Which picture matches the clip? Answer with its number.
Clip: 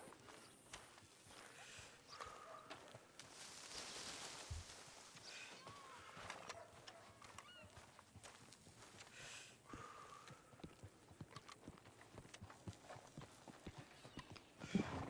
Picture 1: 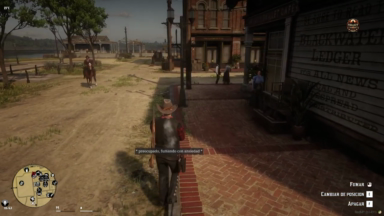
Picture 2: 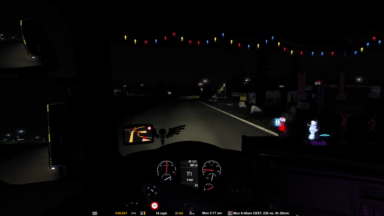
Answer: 1